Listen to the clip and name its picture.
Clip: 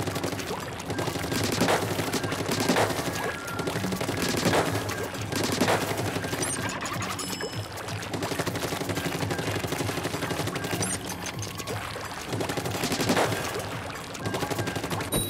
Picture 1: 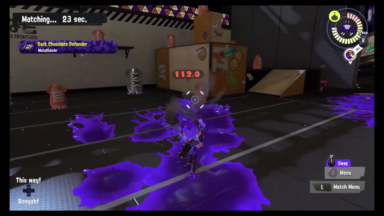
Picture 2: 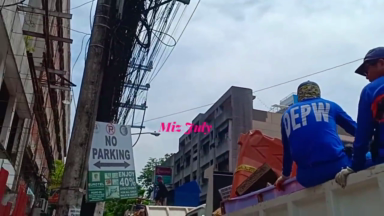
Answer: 1